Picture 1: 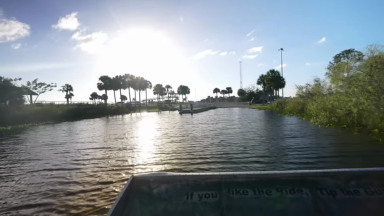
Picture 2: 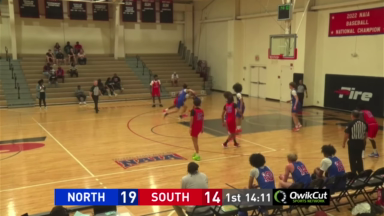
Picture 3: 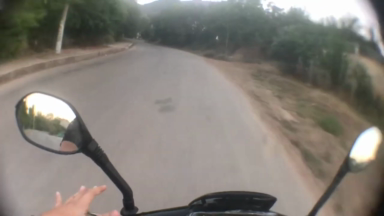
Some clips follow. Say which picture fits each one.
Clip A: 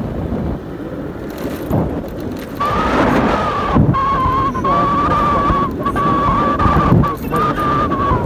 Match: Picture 3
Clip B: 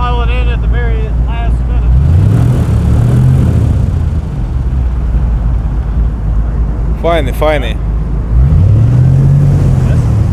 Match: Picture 1